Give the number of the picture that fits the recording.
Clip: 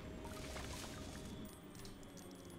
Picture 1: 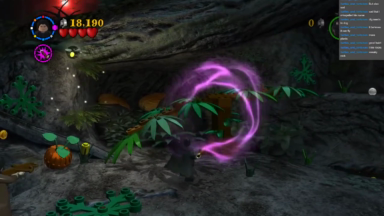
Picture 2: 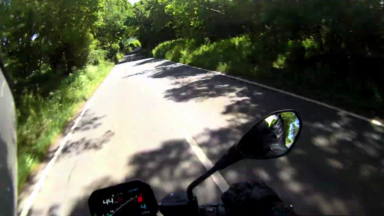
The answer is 1